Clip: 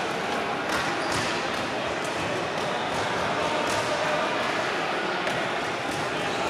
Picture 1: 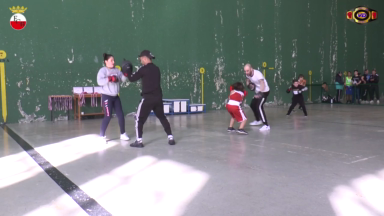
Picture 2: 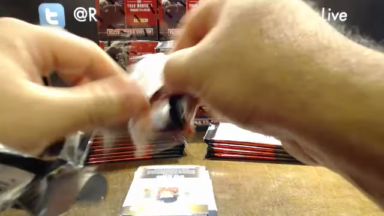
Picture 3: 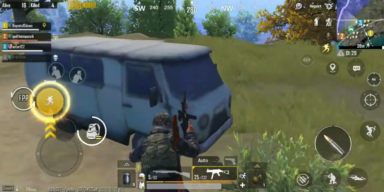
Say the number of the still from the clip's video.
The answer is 1